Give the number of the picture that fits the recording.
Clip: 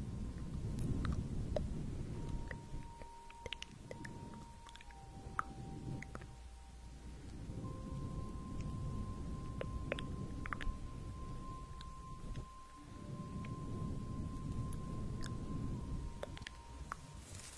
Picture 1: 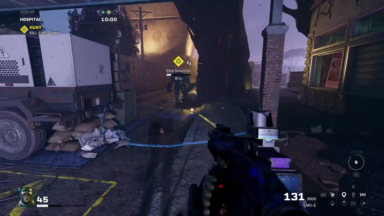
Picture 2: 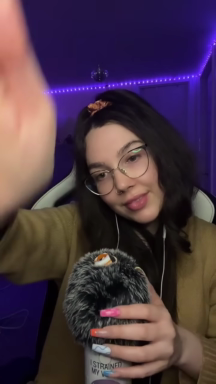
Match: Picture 2